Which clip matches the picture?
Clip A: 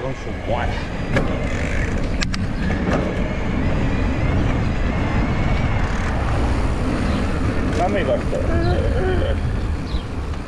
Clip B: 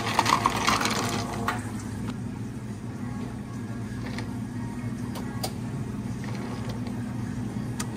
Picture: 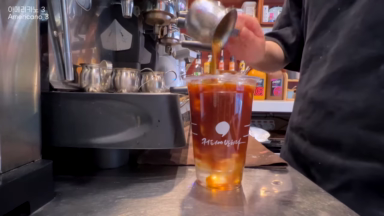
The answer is B